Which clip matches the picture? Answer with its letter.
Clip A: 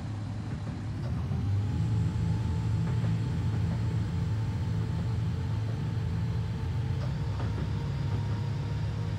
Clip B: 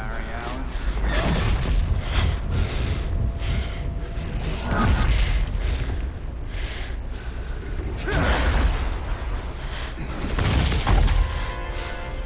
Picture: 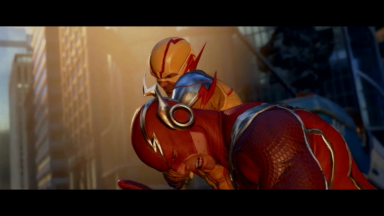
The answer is B